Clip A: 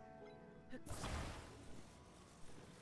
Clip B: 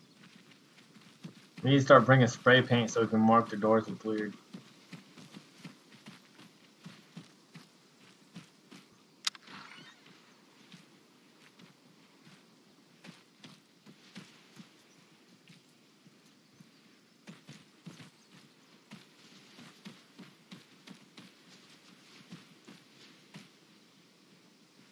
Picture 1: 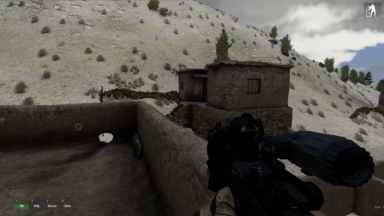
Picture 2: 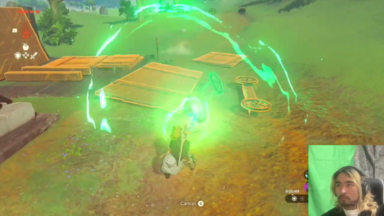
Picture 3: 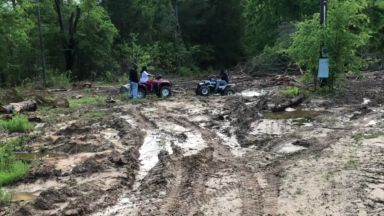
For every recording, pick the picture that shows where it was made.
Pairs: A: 2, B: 1